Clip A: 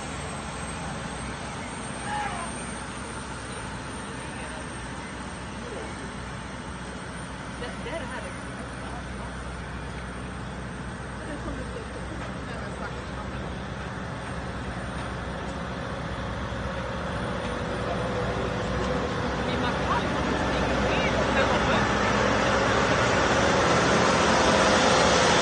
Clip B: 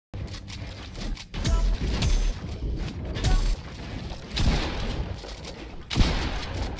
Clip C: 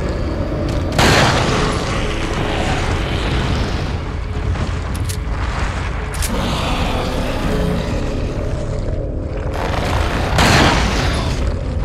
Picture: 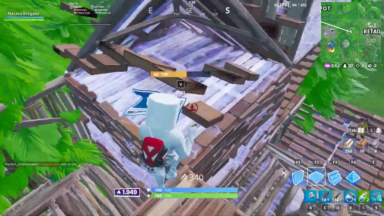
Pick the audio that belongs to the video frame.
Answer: B